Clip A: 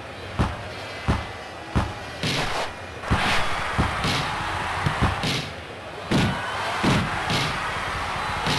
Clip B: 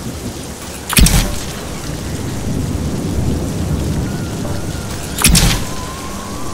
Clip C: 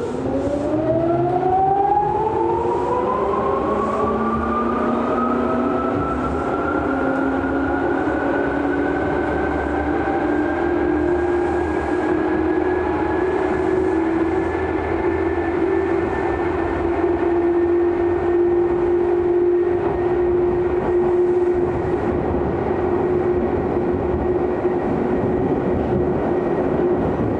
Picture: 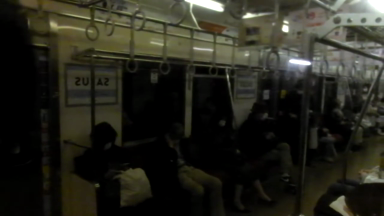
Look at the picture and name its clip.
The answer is C